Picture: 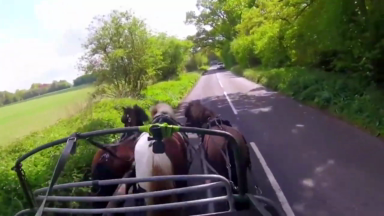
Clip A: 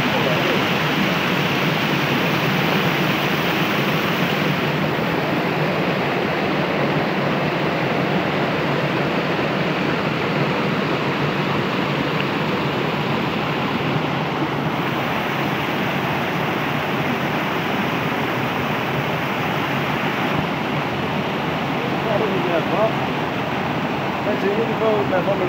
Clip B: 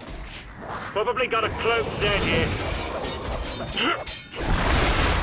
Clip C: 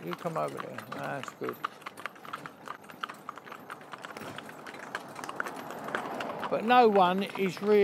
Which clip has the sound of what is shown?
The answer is C